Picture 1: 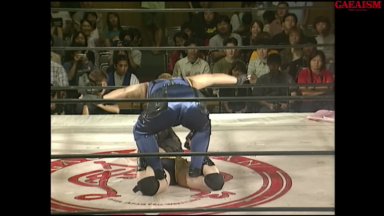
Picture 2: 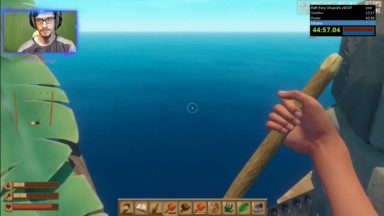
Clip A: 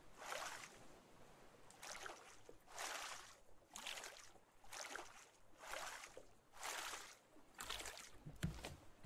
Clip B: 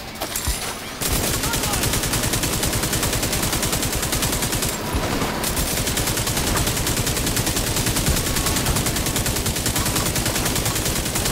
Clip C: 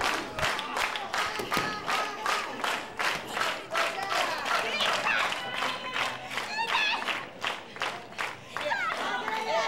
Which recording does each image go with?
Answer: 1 C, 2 A